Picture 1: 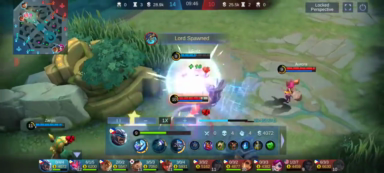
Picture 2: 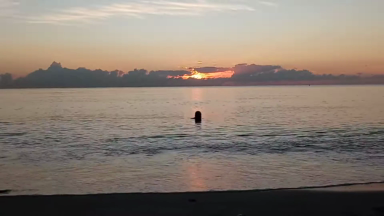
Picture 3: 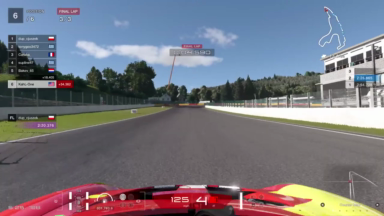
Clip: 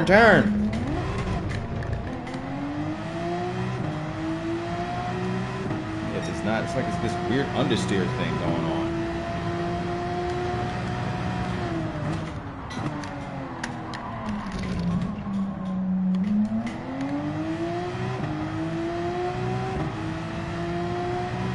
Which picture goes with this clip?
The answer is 3